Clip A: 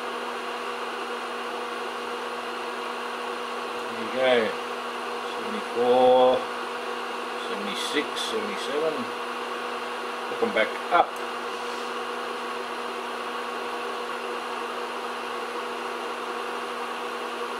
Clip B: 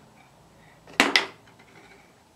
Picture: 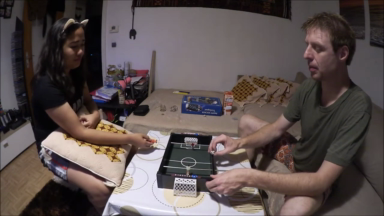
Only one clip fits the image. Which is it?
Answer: B